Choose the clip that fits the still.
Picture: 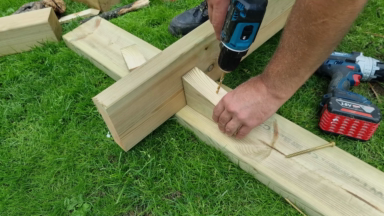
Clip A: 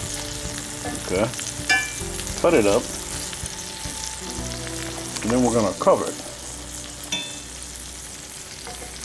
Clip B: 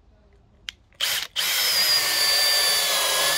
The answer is B